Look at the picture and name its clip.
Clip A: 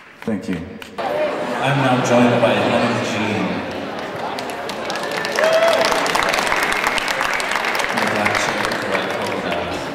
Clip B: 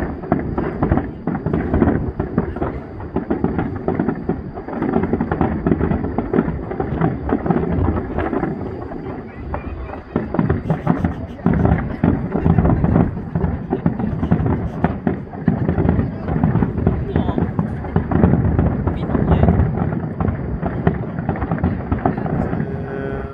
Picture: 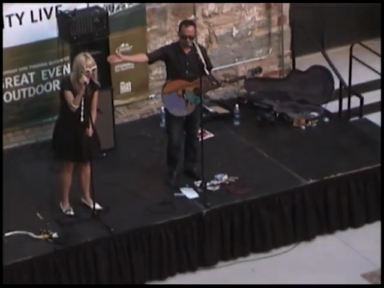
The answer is A